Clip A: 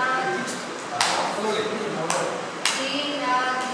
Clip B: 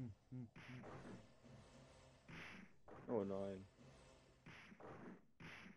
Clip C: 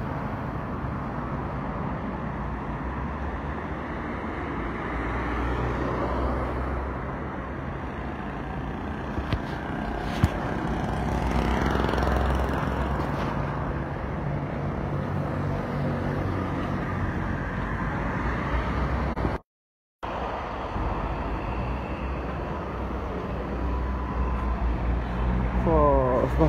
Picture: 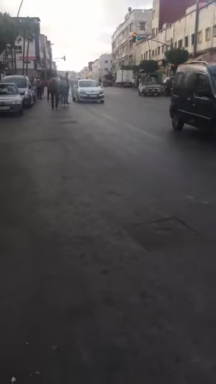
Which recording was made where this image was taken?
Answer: C